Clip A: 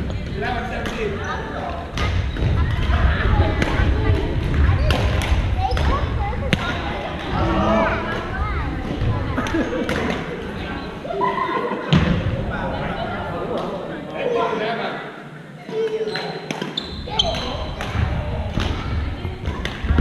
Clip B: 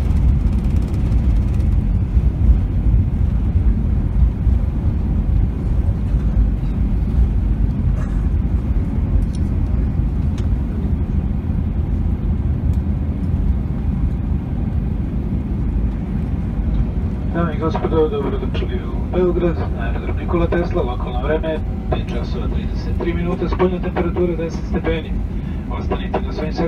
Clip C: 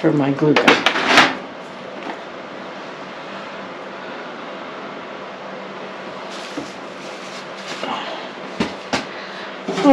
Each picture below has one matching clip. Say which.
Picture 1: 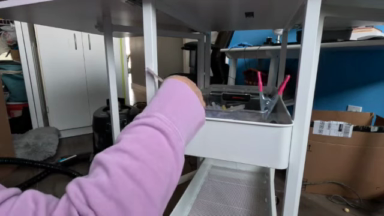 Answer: C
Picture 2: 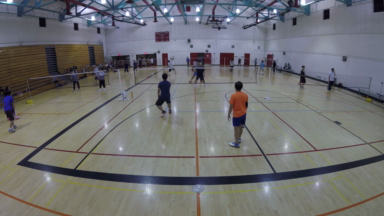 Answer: A